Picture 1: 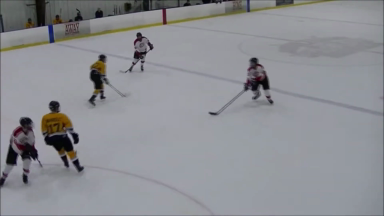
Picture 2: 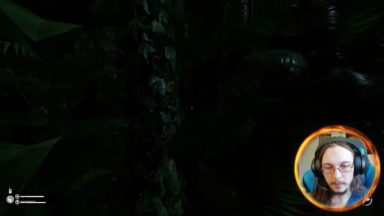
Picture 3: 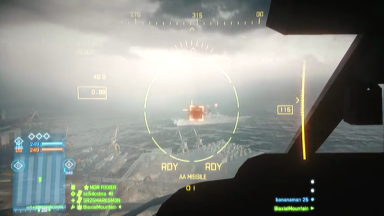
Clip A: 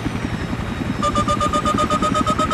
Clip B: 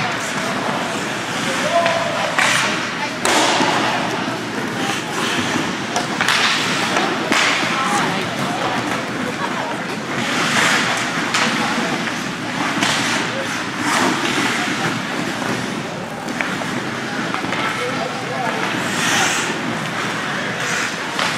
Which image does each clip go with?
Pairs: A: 3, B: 1